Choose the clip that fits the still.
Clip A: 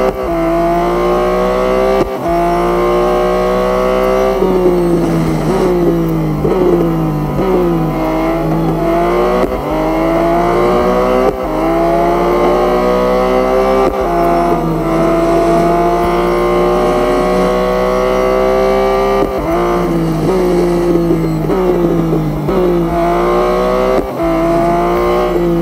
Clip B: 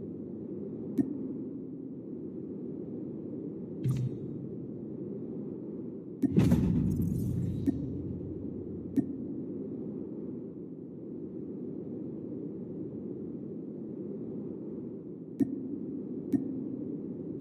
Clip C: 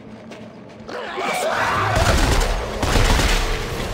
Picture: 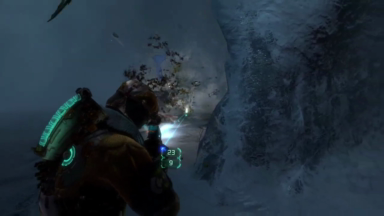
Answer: C